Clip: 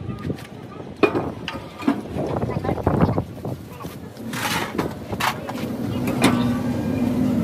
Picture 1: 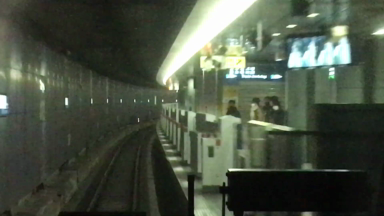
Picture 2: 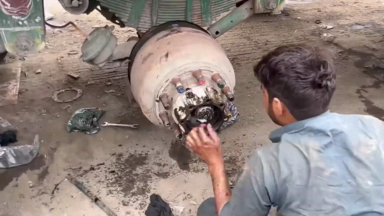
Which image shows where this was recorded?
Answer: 2